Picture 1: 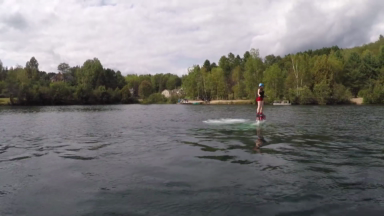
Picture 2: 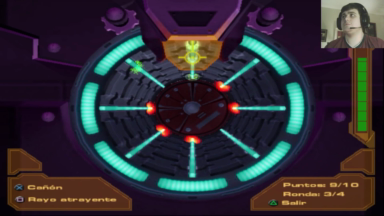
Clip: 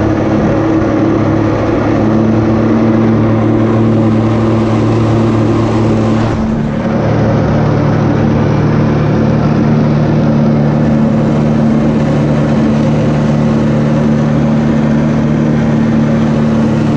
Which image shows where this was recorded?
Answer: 1